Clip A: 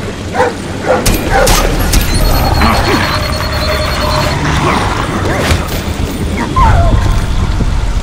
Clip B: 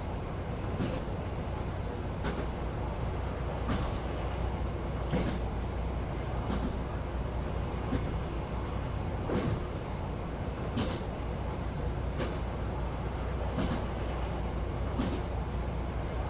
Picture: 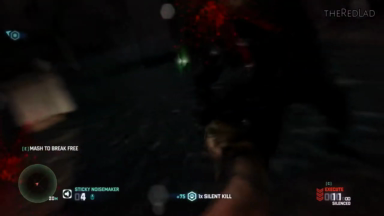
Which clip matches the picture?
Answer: A